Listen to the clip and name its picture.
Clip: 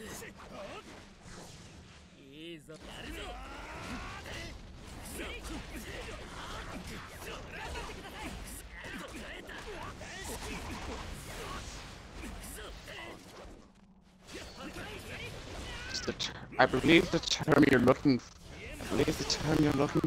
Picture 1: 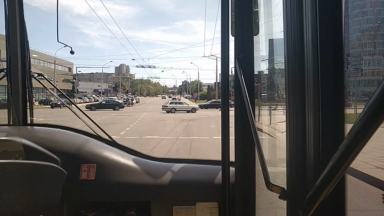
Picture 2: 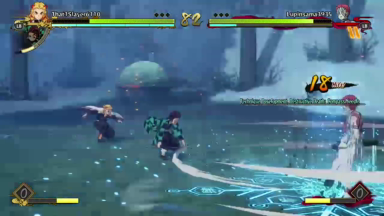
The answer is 2